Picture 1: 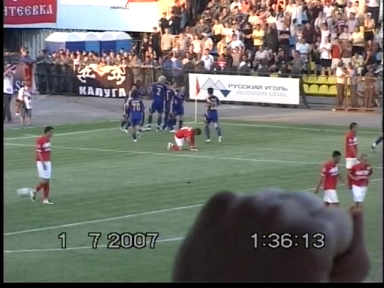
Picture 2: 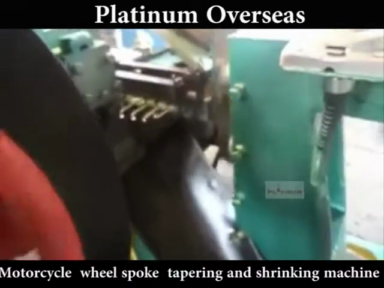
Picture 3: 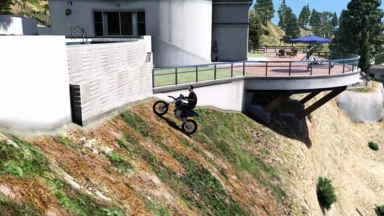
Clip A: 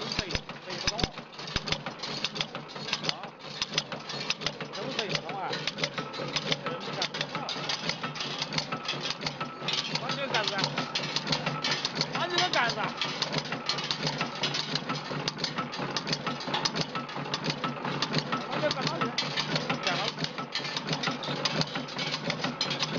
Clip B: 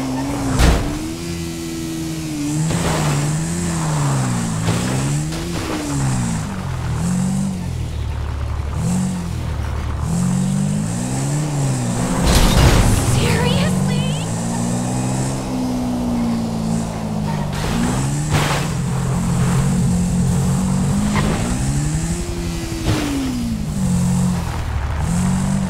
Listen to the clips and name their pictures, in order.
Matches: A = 2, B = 3